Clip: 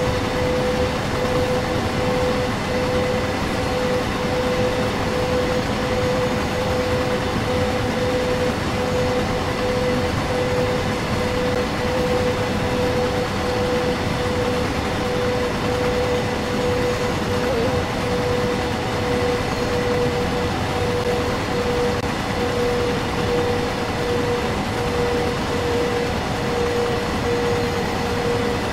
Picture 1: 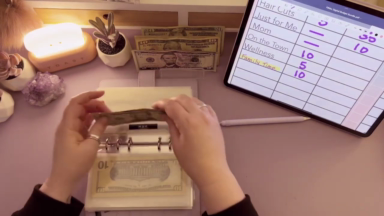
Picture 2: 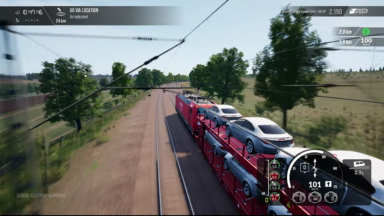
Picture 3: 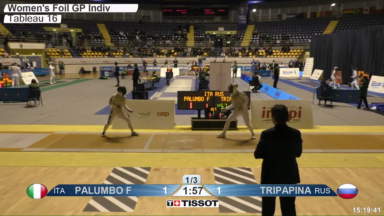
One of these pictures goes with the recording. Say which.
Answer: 2